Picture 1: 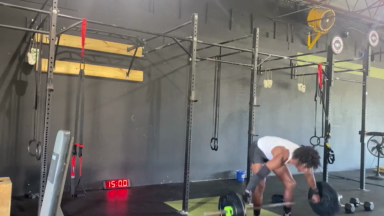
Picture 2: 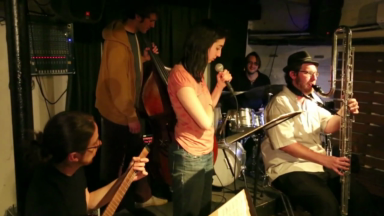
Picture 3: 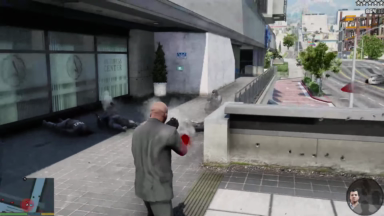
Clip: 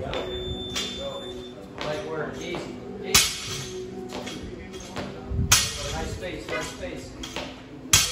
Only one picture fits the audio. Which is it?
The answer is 1